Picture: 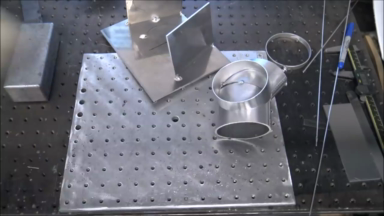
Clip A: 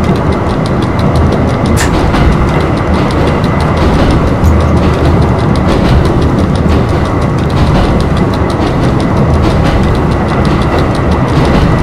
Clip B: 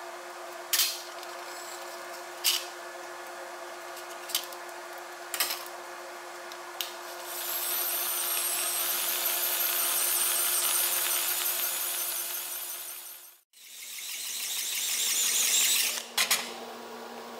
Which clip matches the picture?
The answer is B